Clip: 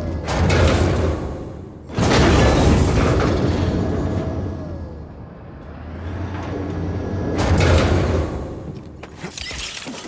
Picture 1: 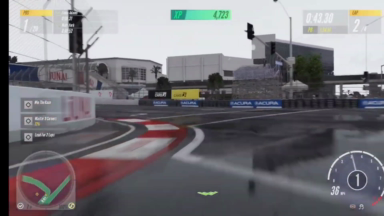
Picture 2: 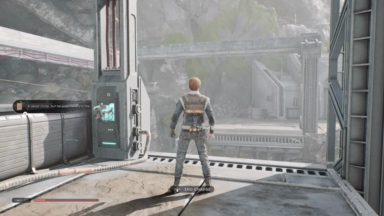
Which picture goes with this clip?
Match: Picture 2